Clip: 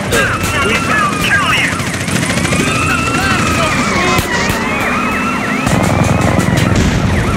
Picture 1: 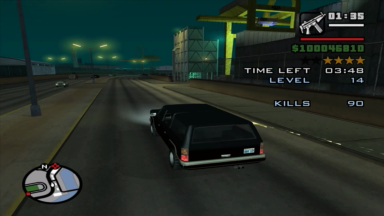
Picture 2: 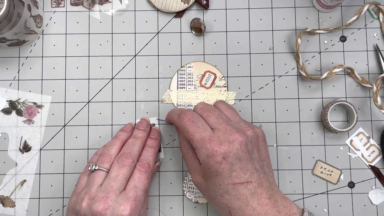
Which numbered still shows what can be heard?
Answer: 1